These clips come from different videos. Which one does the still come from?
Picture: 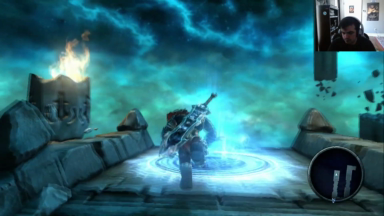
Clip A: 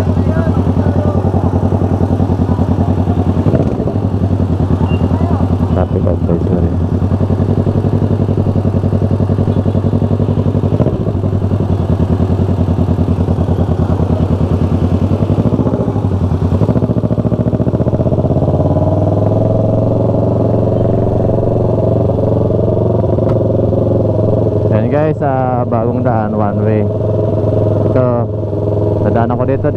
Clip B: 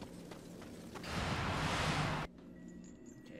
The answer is B